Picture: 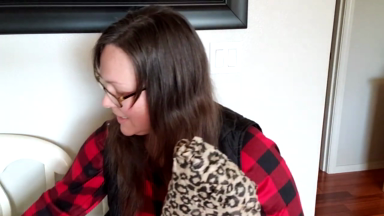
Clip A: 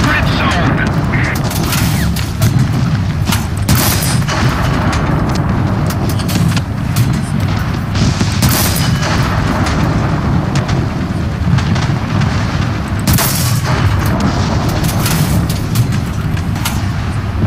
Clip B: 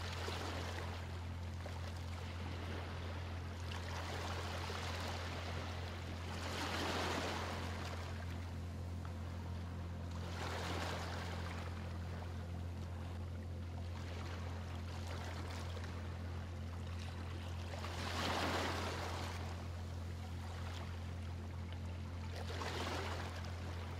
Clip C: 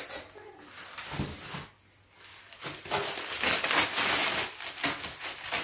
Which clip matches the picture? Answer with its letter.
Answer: C